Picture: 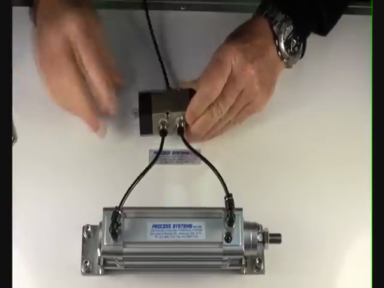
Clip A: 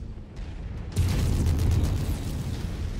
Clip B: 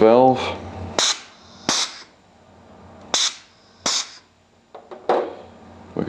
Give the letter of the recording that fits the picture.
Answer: B